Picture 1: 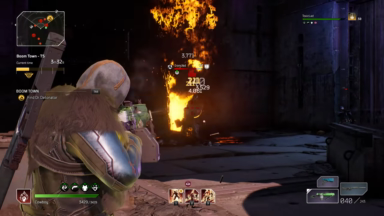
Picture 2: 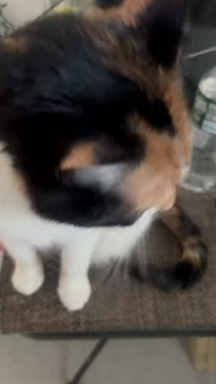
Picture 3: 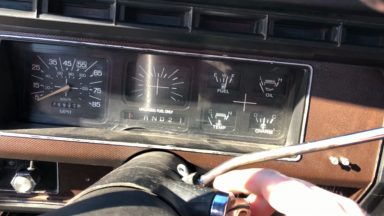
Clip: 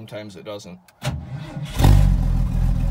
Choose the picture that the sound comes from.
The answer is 3